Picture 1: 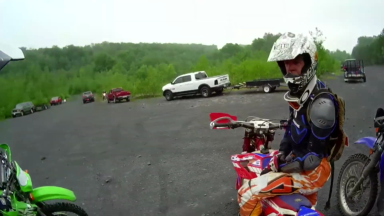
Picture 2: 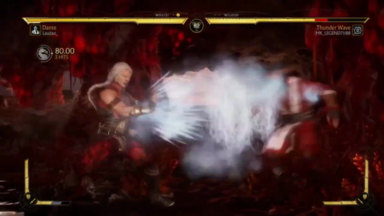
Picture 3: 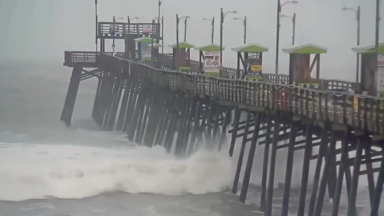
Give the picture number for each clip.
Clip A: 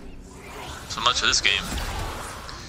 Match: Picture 2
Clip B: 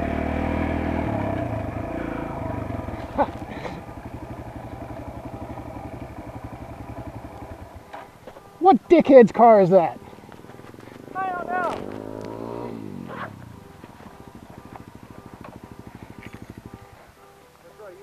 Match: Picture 1